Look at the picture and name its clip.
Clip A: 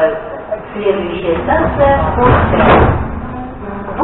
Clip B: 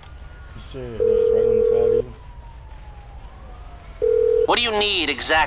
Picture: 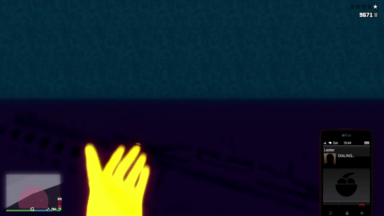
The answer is B